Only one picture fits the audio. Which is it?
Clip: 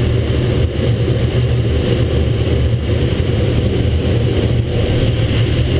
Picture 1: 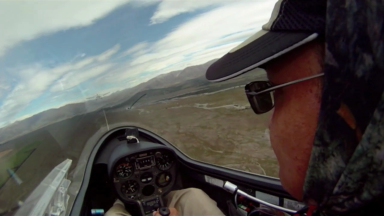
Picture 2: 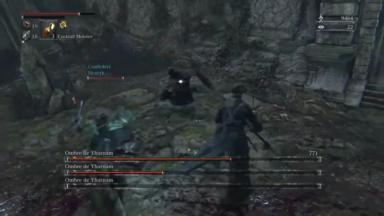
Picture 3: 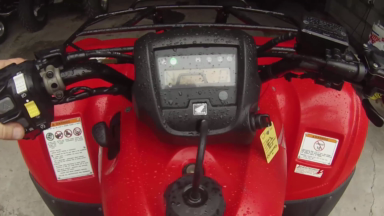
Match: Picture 1